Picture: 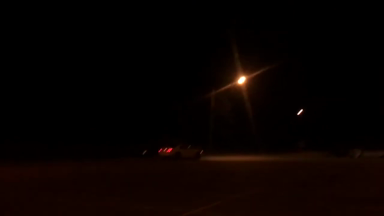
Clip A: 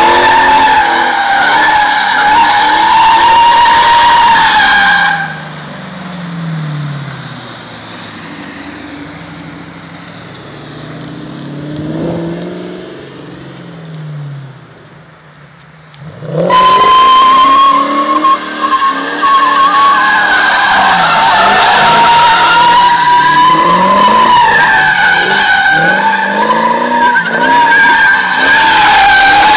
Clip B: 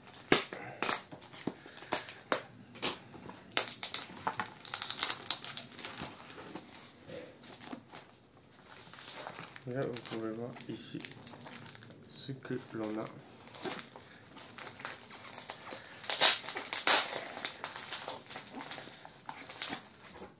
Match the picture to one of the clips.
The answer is A